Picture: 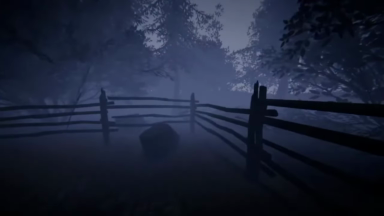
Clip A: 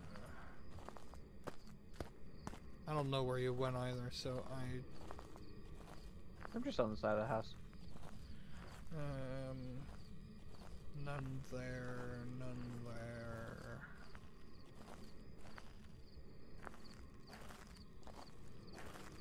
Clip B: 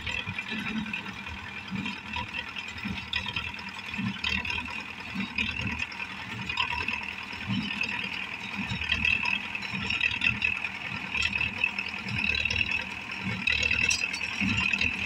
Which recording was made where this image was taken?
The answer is A